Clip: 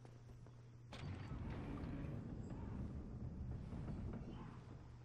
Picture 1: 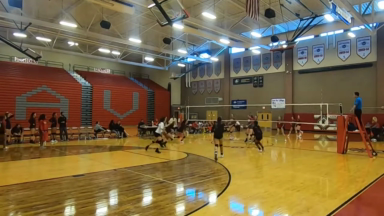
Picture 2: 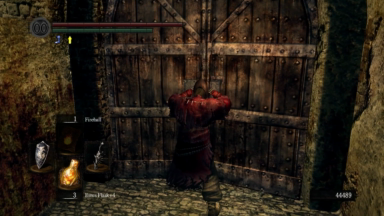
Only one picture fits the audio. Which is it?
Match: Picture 2